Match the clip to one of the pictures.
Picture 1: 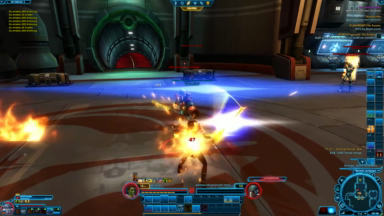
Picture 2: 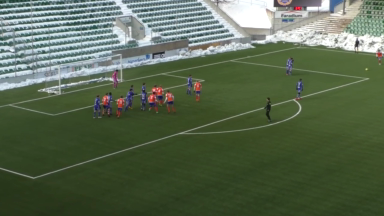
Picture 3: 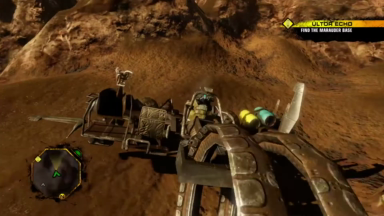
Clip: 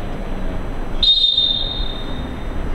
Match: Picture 2